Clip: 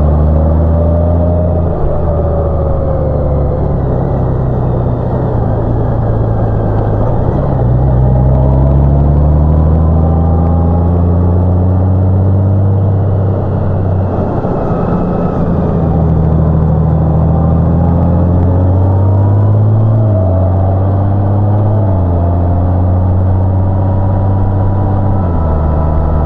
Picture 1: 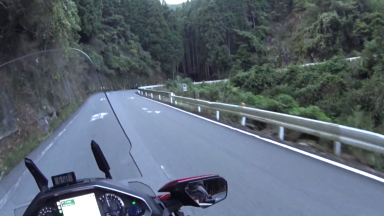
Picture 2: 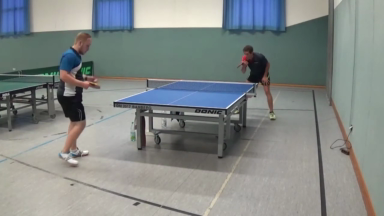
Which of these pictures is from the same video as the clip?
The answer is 1